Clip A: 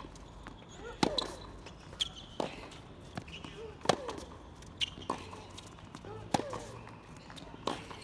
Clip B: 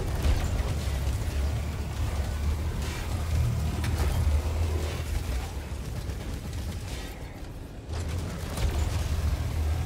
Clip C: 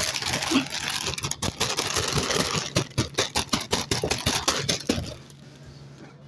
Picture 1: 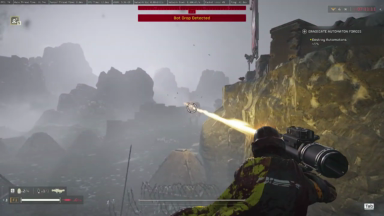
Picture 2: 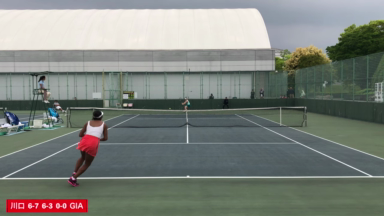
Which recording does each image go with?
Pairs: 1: B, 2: A